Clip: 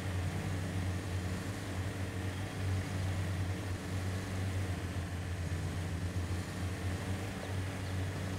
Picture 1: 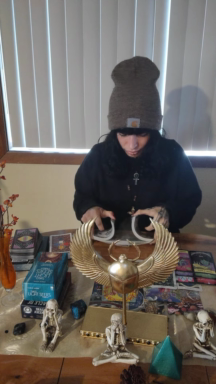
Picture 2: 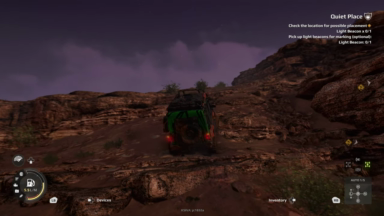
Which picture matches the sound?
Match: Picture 2